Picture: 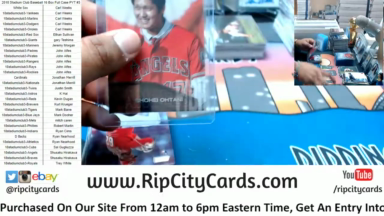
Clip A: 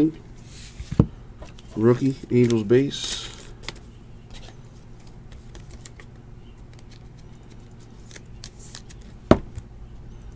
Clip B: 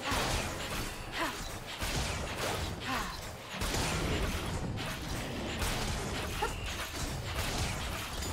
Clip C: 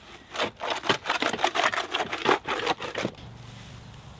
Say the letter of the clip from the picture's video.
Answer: A